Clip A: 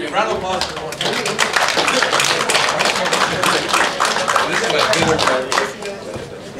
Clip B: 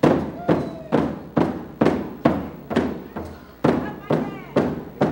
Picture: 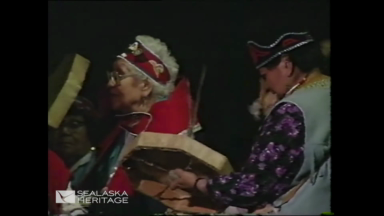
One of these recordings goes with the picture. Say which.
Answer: B